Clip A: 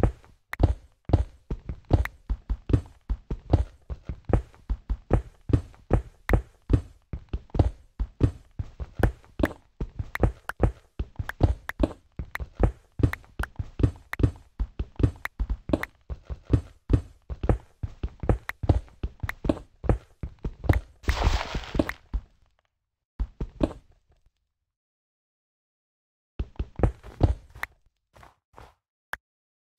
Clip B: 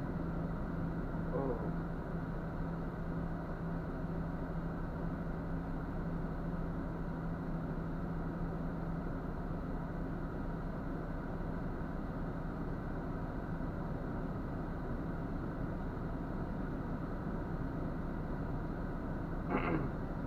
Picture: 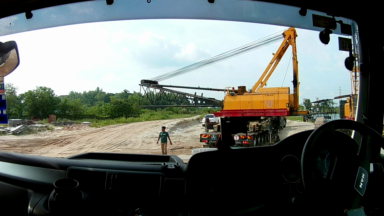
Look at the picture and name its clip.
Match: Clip B